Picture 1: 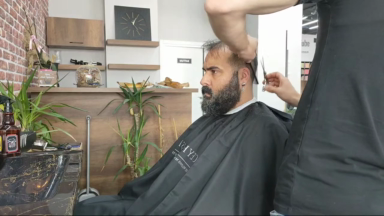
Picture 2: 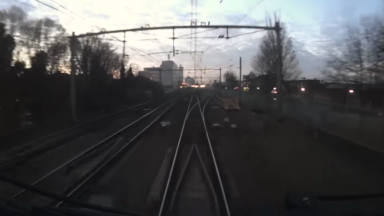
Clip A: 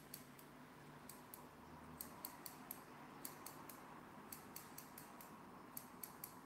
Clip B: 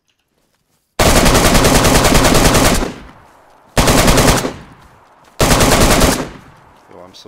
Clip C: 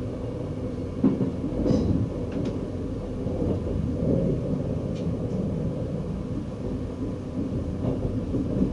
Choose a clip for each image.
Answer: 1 A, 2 C